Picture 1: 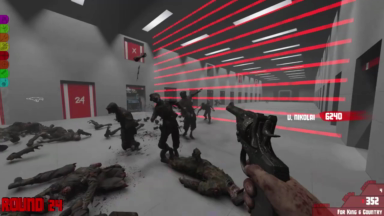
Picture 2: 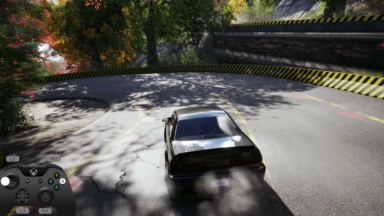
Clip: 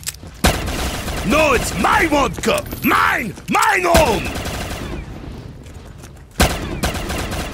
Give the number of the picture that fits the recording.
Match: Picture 1